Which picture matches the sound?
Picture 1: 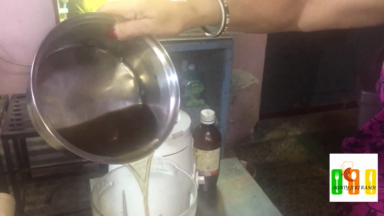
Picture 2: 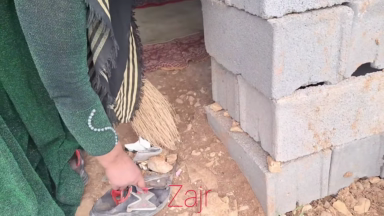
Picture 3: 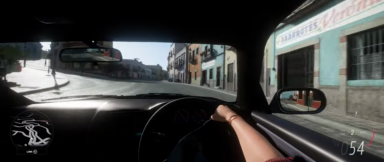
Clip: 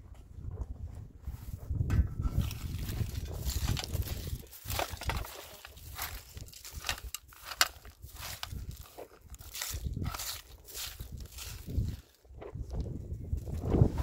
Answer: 2